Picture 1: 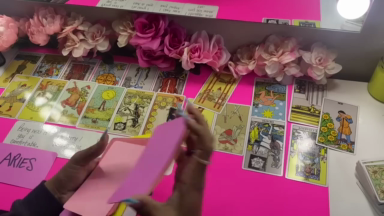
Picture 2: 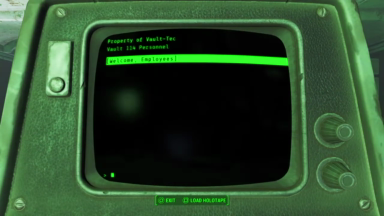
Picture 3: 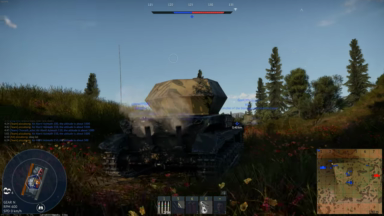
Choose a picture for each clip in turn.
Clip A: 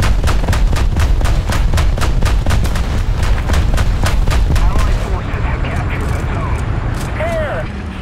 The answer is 3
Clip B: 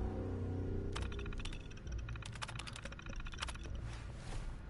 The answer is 2